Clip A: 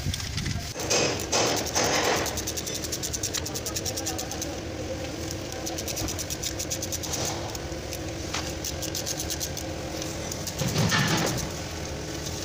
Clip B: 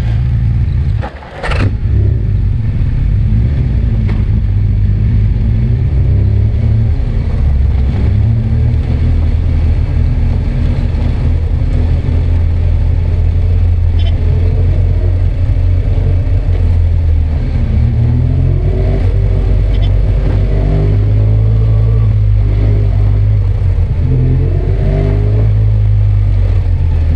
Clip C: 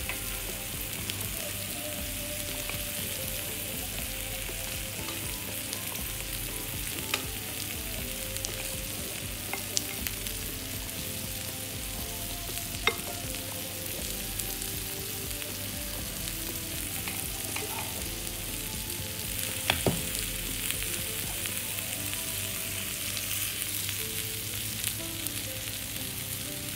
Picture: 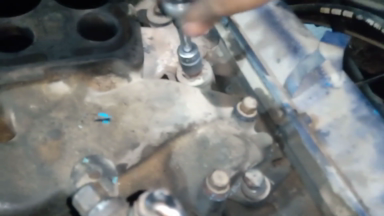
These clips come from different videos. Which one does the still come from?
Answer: A